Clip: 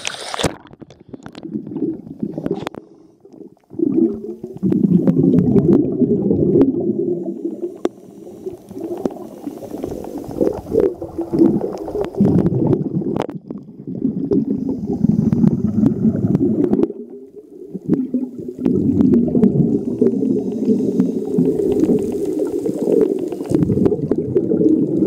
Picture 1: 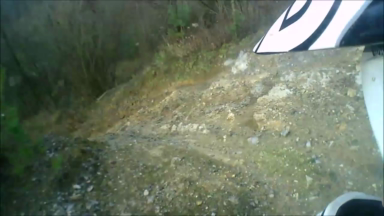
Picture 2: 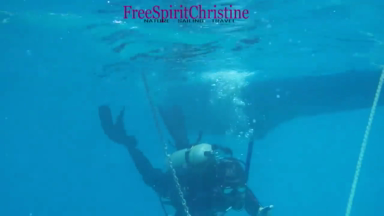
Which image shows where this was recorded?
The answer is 2